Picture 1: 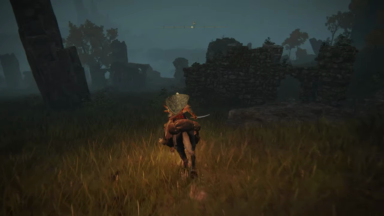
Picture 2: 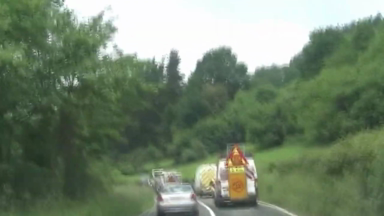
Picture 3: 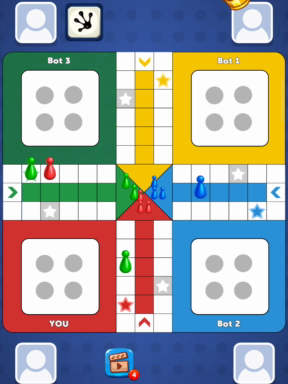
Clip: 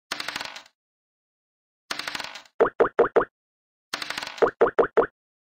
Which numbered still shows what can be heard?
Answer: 3